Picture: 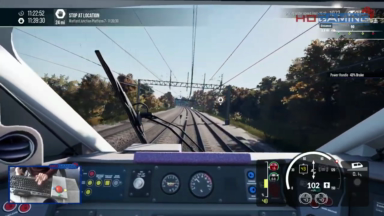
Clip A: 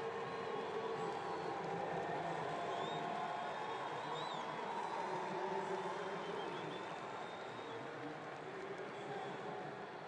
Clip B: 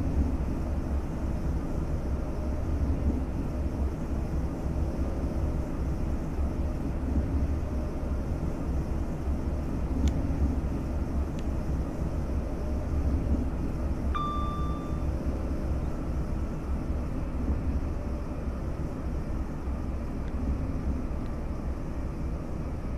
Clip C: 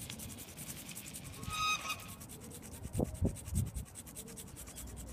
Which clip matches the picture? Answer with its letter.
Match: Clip B